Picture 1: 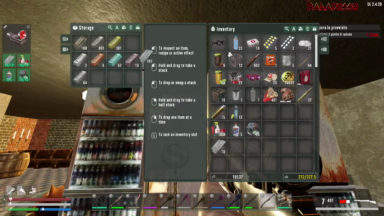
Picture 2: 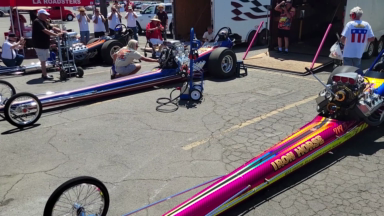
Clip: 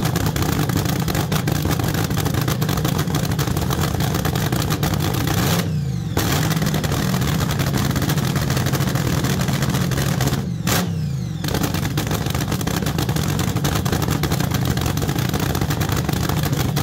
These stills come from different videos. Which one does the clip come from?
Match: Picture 2